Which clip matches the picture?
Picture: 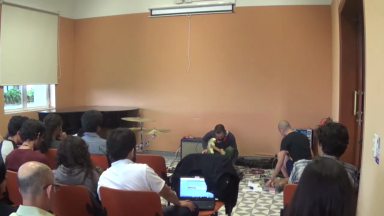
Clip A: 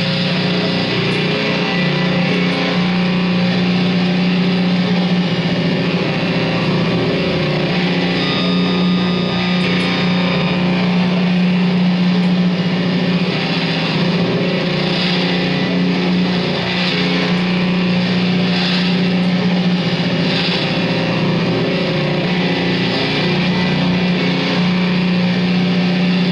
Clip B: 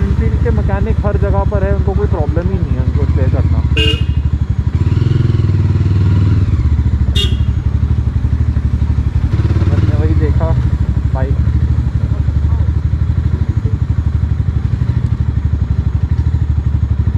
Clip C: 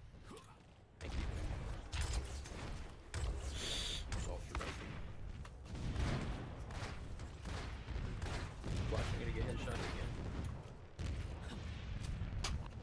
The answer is A